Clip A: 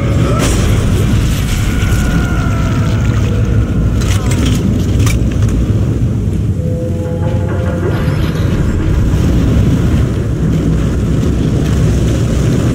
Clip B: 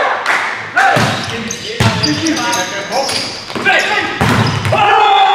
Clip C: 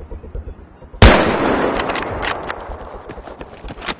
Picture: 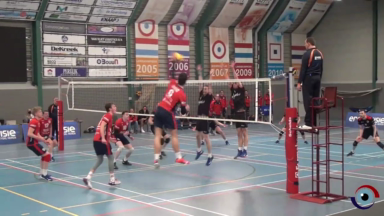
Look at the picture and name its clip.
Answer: B